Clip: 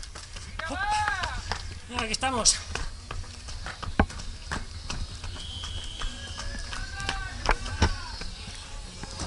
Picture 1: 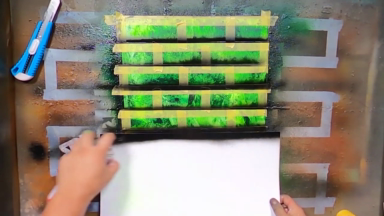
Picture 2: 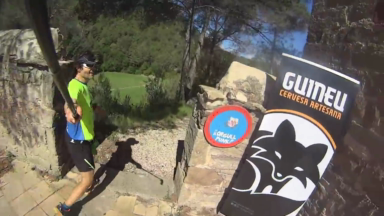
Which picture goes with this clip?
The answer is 2